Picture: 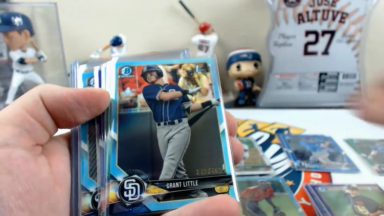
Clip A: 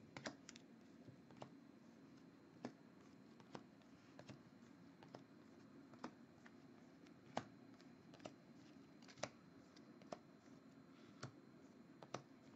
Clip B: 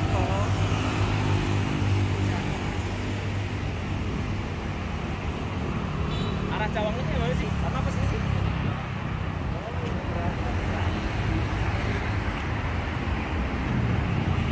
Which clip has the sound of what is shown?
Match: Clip A